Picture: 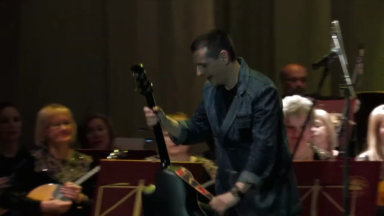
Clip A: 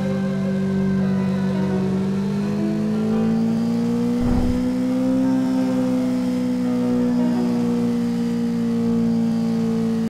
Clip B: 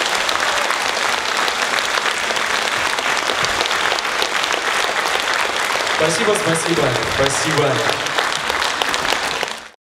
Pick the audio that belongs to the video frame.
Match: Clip B